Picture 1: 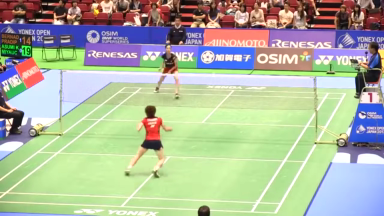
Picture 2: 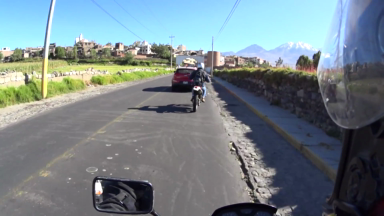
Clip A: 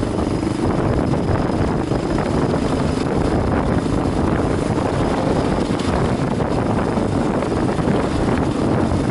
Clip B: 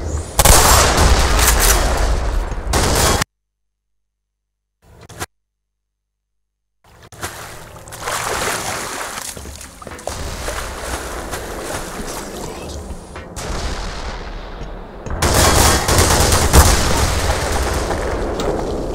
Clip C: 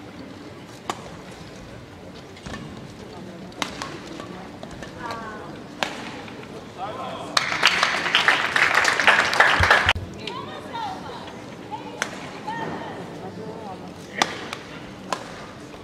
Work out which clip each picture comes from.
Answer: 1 C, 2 A